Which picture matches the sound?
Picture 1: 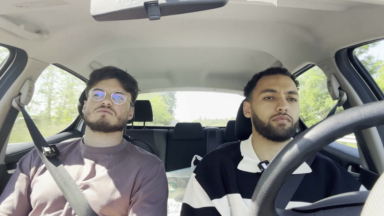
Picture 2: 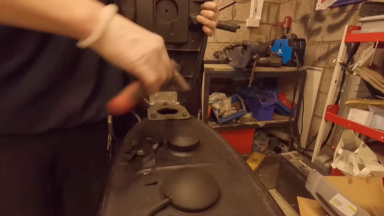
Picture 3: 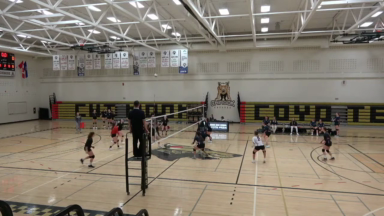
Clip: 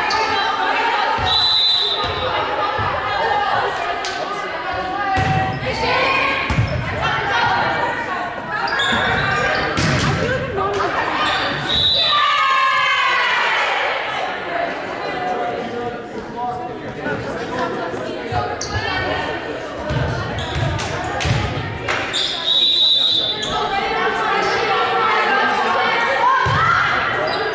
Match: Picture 3